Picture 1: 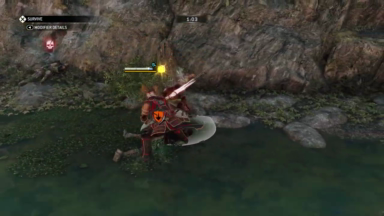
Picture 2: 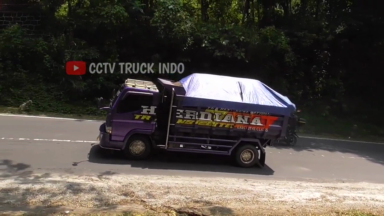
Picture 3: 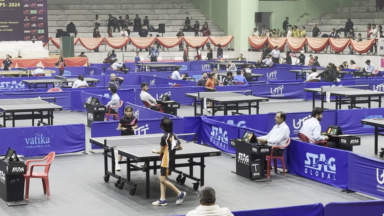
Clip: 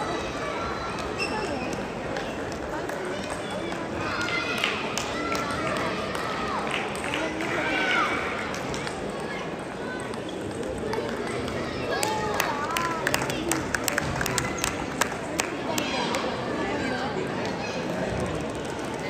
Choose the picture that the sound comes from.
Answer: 3